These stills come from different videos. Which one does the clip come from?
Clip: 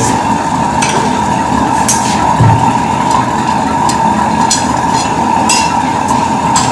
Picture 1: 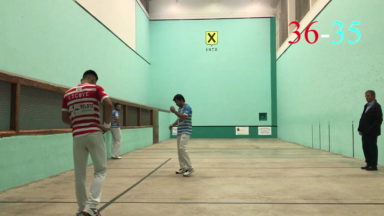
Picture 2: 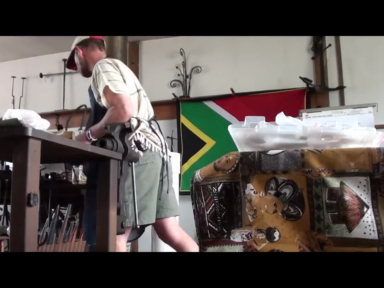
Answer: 2